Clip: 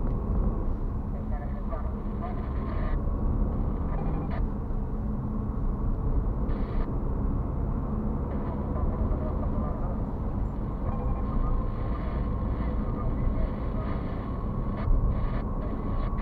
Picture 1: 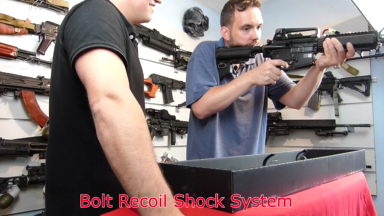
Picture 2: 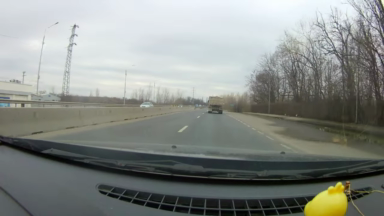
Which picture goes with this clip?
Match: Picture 2